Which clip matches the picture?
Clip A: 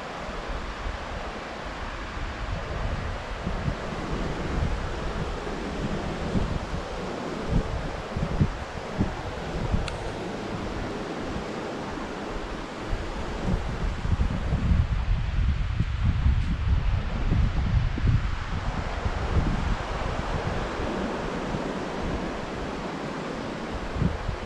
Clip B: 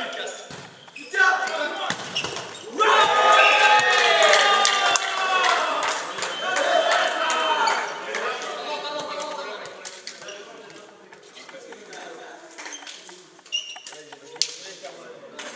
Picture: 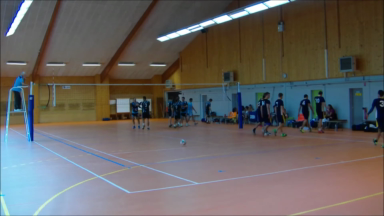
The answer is B